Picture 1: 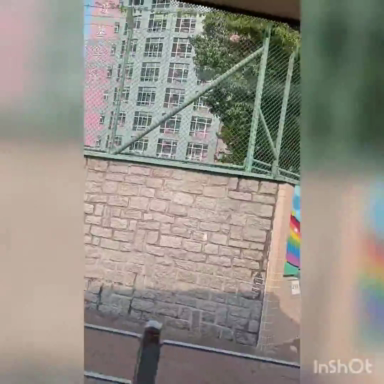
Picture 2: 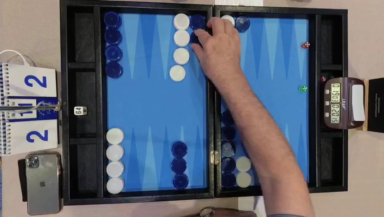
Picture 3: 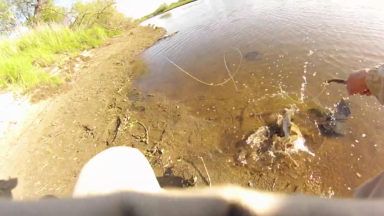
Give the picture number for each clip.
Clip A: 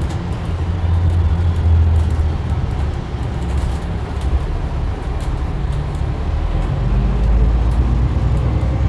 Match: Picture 1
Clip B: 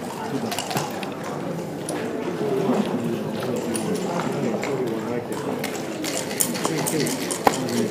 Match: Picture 2